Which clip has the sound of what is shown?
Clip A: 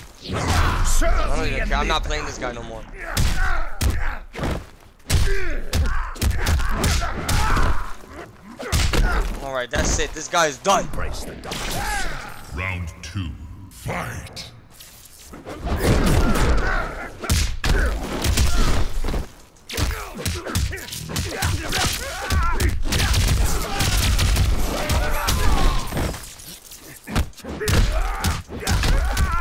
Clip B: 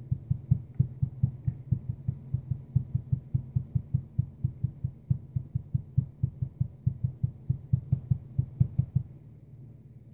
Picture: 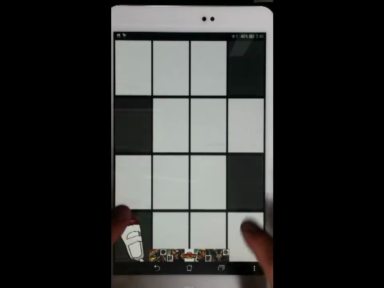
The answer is B